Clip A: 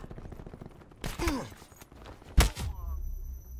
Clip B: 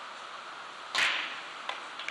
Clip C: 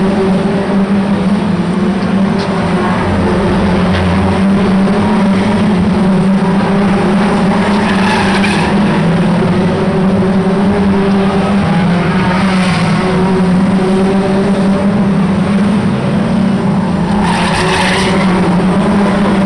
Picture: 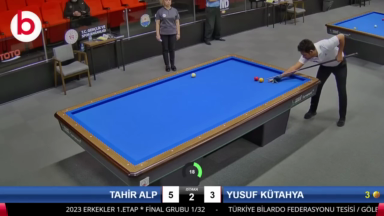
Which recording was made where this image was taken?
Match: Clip B